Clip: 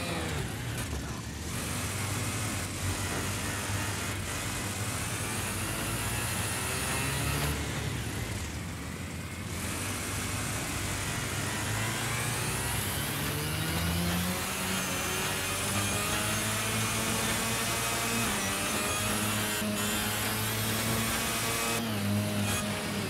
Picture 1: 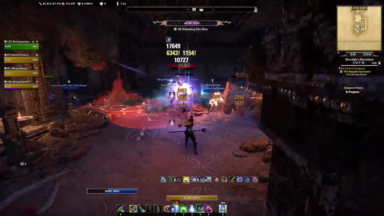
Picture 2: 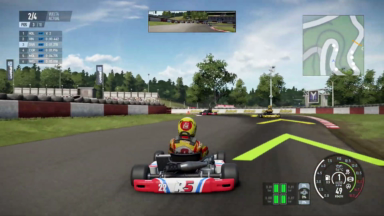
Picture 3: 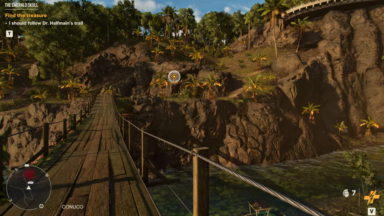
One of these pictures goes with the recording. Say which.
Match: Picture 2